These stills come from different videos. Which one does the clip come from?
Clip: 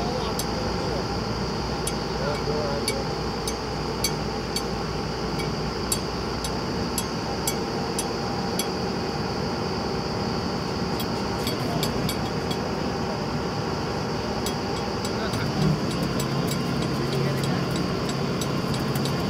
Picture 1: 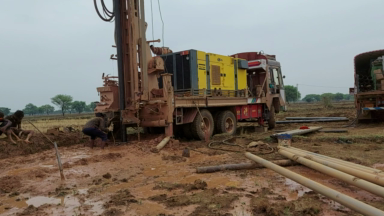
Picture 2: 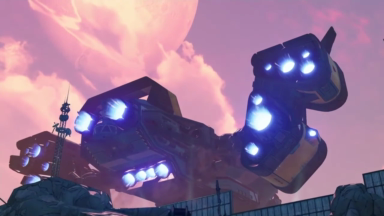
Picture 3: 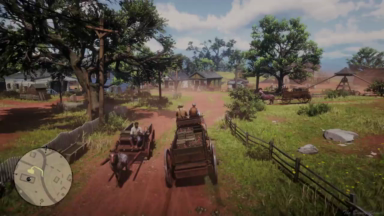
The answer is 1